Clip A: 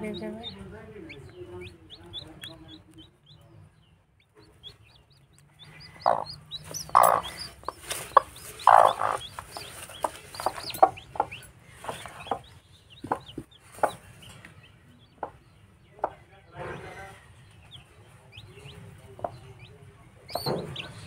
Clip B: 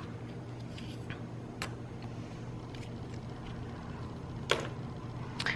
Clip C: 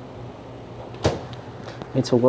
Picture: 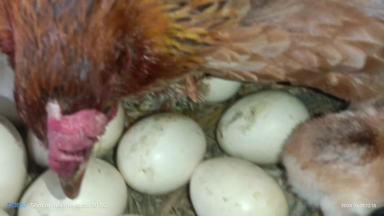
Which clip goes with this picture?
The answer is A